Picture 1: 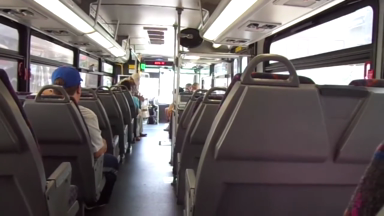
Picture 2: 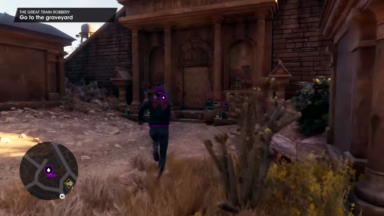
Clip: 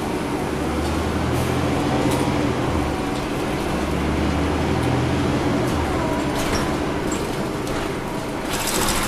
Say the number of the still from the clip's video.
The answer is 1